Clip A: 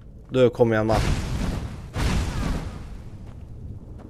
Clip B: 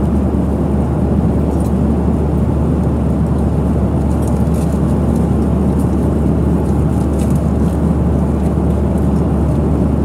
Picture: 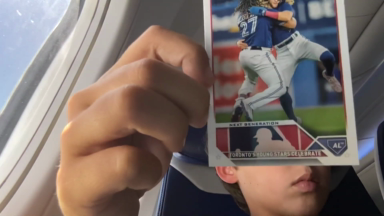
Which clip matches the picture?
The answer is B